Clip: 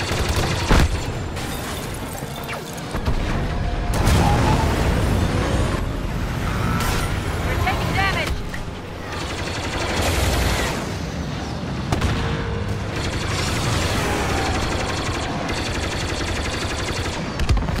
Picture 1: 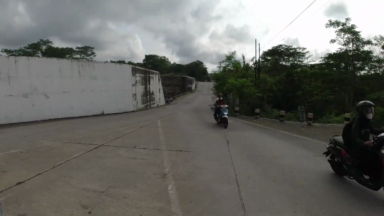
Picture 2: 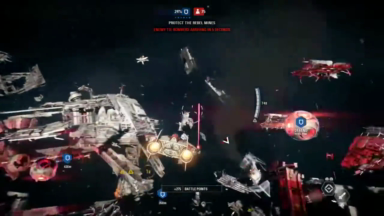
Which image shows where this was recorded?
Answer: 2